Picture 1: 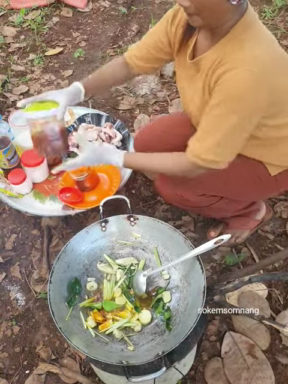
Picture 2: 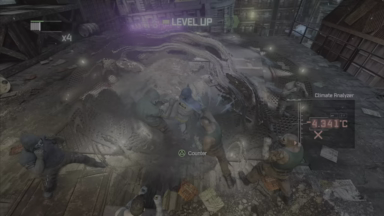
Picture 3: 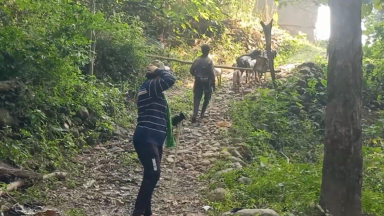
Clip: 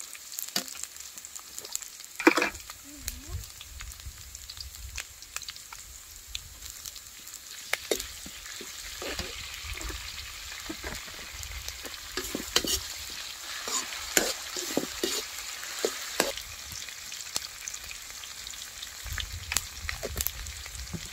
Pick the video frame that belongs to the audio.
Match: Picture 1